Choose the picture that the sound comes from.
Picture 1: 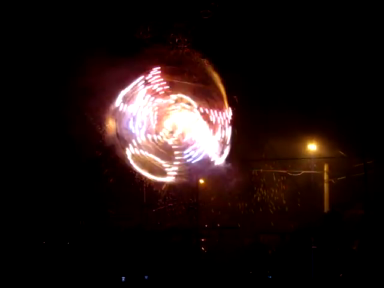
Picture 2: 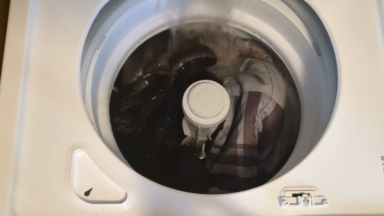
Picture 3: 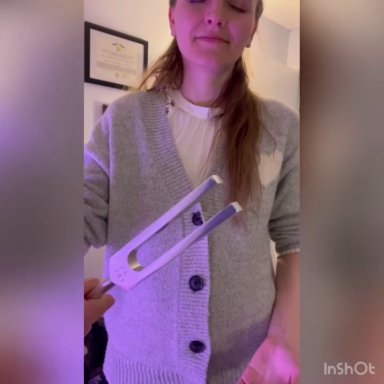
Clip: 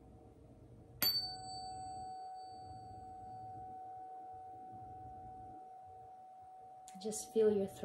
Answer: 3